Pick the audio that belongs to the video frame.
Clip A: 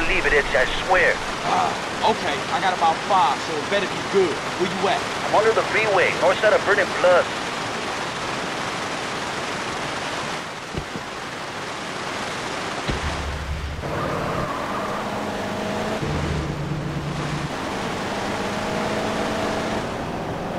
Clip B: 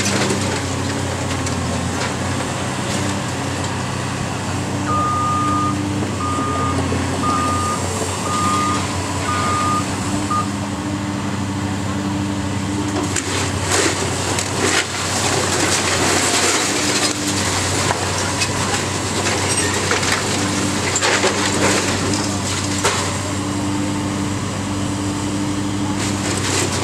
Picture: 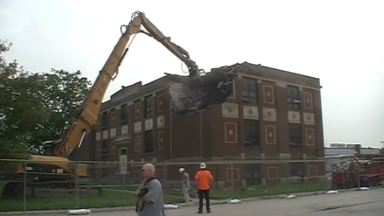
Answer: B